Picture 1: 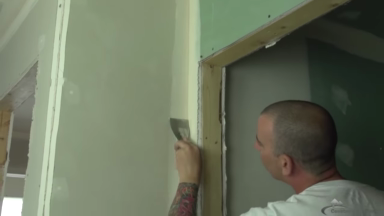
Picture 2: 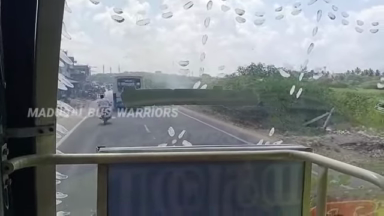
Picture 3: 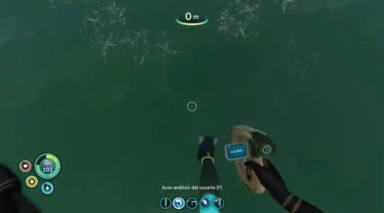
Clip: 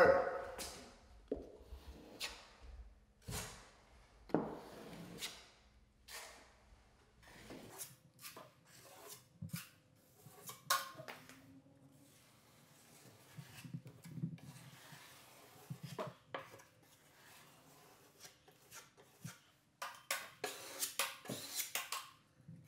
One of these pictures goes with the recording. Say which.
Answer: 1